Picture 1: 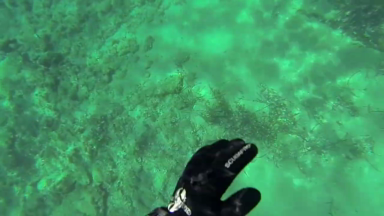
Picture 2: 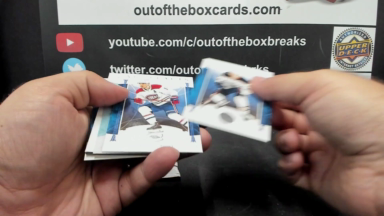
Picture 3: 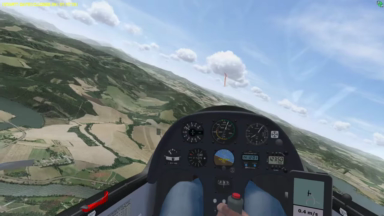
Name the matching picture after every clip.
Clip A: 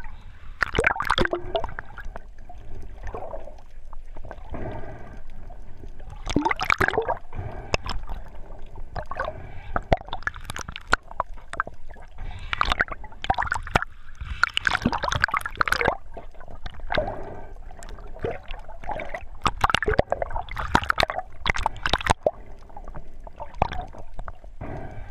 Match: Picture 1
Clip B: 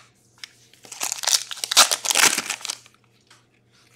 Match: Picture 2